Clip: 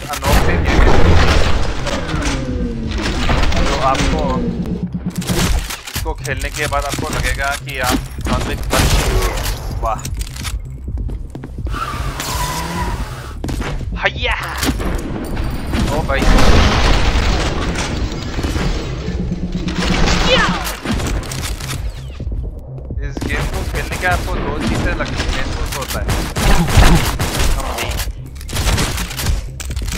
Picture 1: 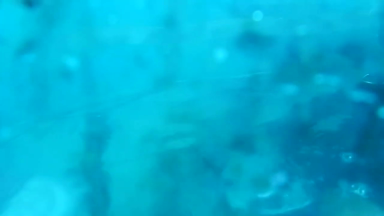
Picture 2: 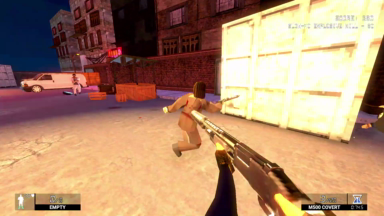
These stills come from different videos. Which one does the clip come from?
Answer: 2